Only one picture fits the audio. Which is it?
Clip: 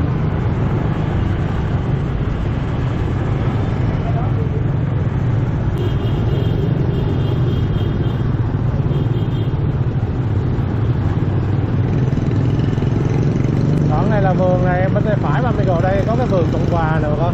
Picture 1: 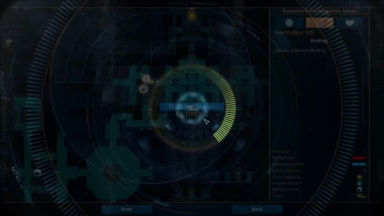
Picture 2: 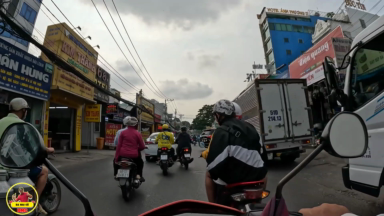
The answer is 2